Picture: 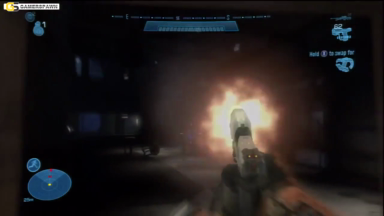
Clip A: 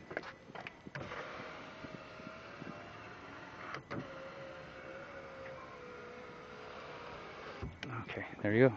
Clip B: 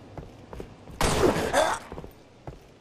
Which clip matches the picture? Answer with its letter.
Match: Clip B